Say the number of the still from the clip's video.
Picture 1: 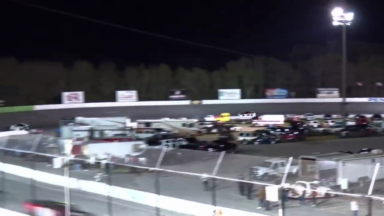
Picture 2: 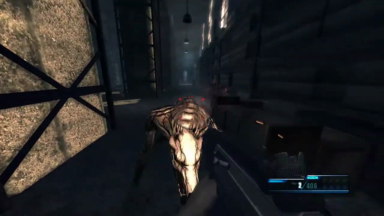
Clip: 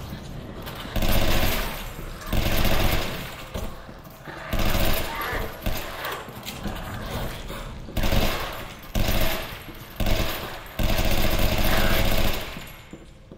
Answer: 2